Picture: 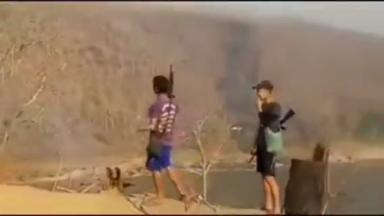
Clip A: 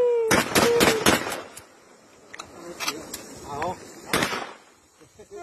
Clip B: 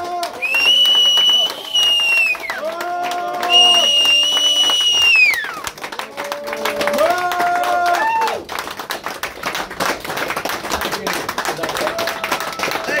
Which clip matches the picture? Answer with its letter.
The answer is A